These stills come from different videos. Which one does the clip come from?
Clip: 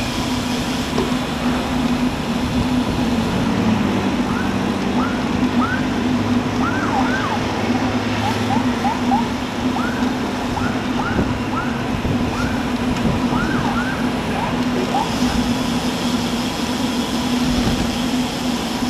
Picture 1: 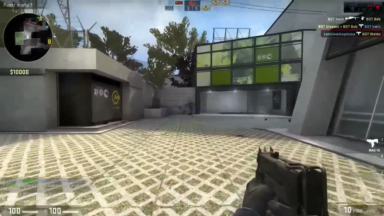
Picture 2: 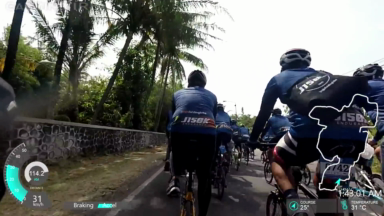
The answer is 2